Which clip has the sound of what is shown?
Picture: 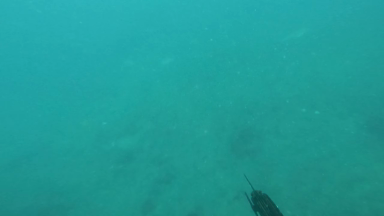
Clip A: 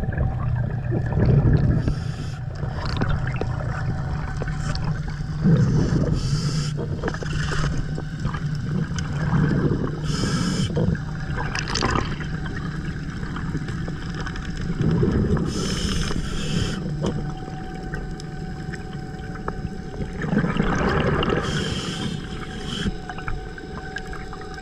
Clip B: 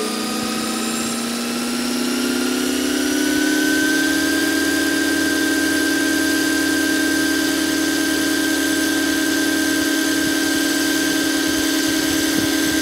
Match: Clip A